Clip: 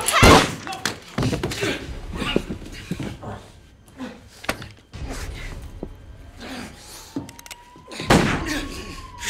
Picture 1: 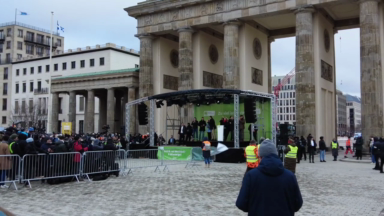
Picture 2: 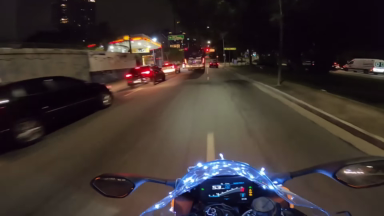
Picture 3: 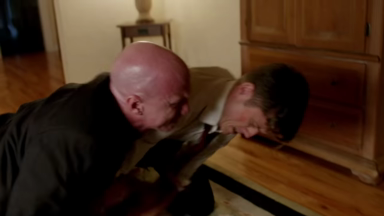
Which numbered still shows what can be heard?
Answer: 3